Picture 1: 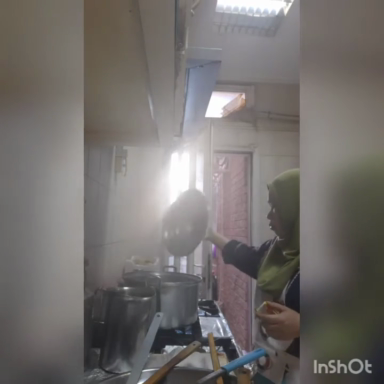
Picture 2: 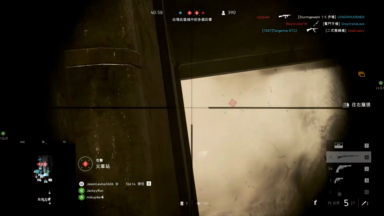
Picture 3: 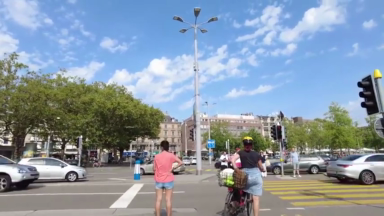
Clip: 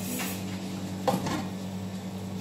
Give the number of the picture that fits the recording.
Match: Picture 1